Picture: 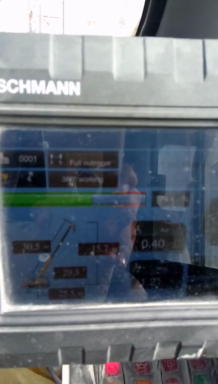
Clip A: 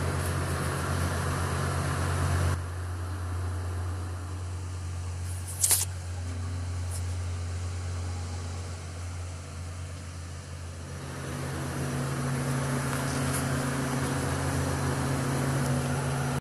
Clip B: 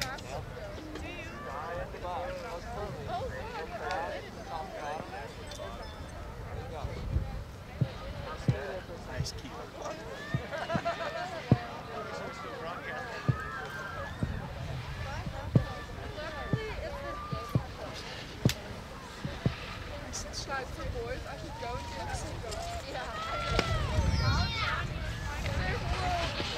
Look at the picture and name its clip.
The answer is A